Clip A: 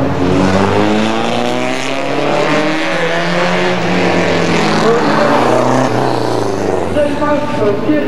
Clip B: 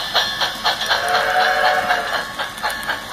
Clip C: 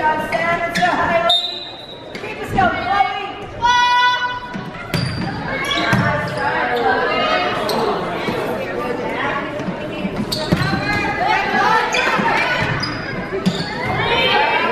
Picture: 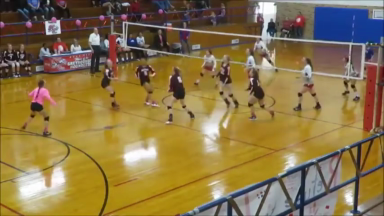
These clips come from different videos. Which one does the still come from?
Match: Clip C